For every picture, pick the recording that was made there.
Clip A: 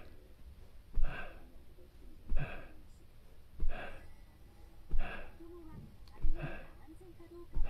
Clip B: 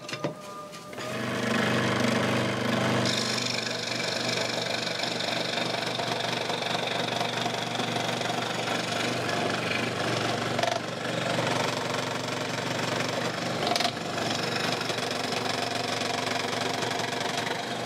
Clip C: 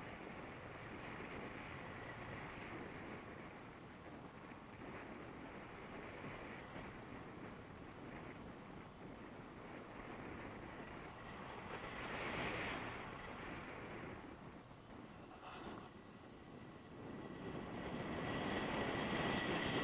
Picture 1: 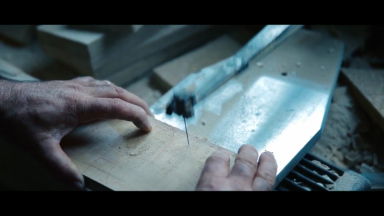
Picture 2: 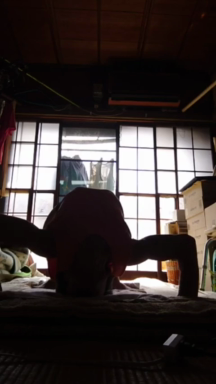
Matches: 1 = B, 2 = A